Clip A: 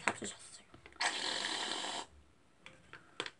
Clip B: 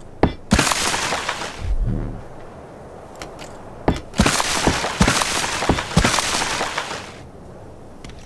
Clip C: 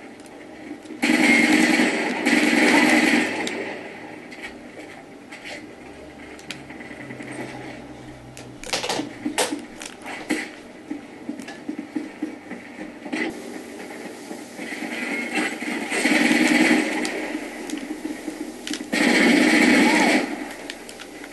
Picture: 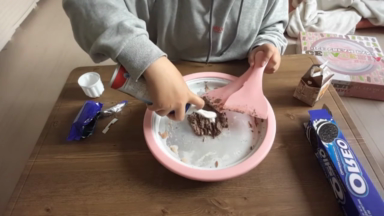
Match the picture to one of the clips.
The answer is A